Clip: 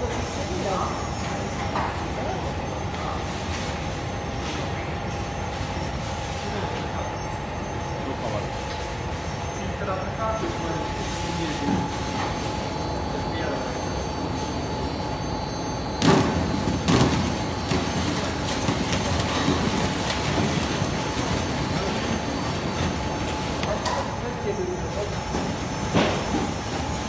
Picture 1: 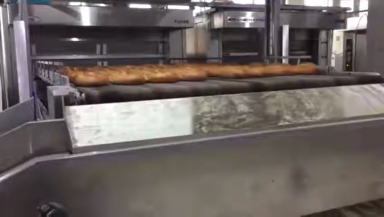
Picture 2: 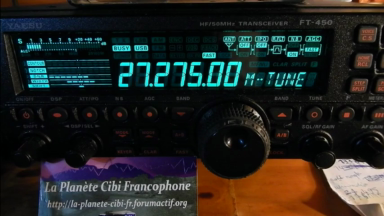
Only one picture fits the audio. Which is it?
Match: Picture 1